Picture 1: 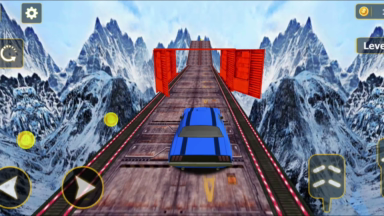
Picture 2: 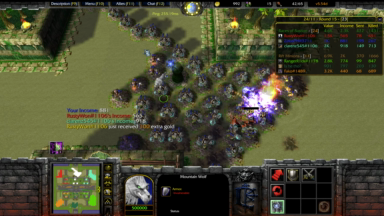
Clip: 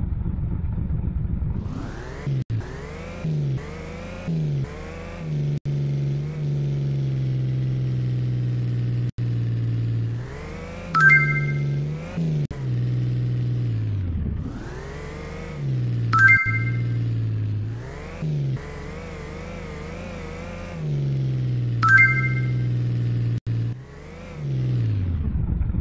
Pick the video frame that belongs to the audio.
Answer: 1